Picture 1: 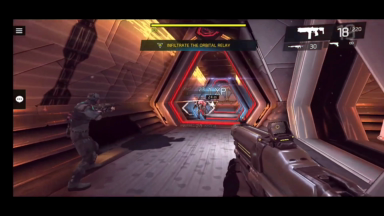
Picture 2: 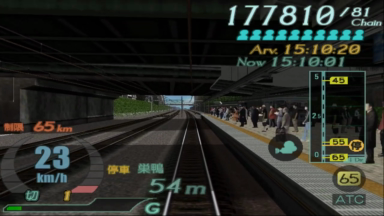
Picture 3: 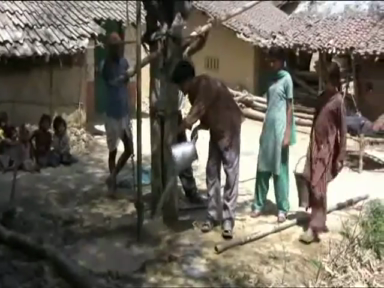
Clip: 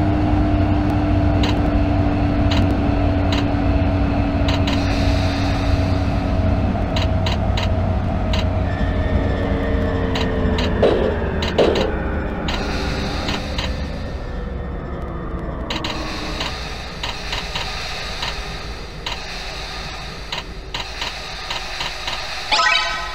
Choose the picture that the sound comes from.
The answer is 2